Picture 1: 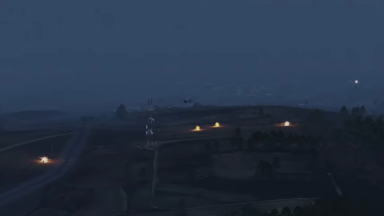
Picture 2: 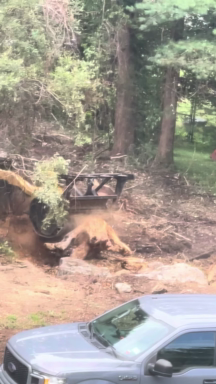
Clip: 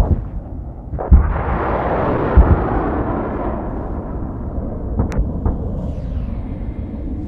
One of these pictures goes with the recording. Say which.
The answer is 1